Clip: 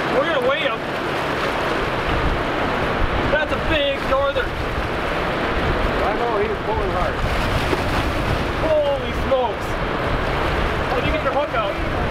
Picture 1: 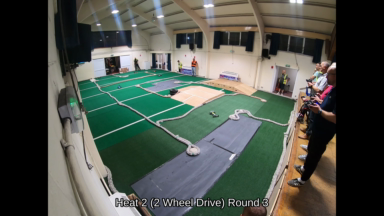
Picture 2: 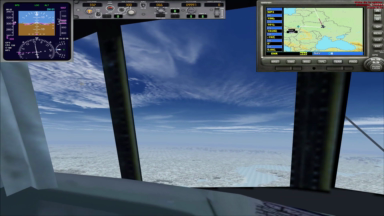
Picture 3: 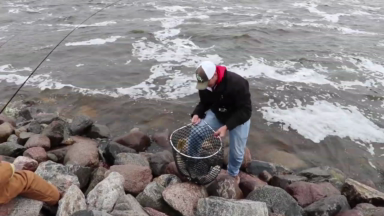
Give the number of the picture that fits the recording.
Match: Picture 3